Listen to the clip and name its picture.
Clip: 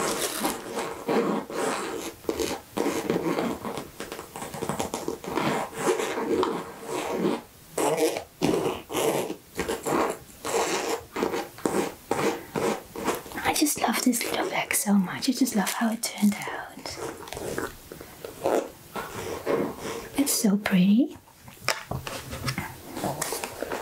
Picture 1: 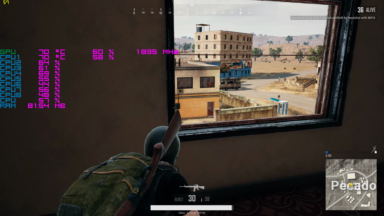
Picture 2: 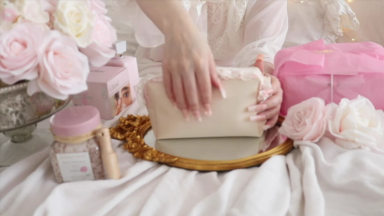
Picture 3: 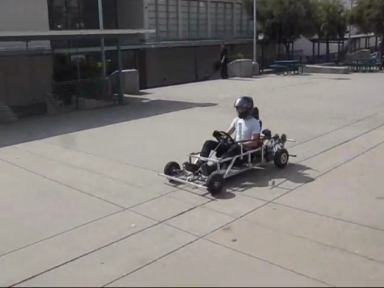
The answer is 2